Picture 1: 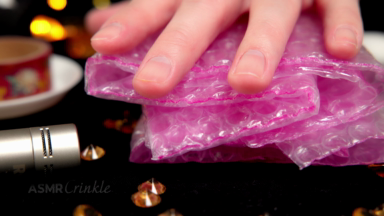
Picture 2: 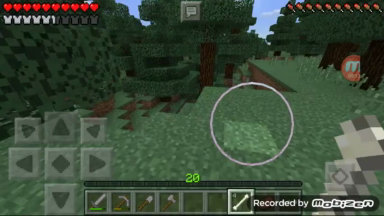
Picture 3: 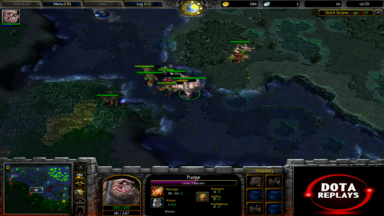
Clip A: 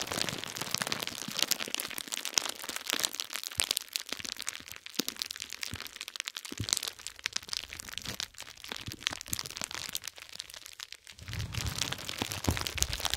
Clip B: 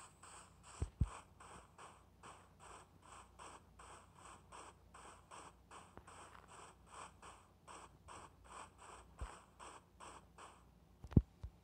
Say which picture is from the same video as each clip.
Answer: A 1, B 2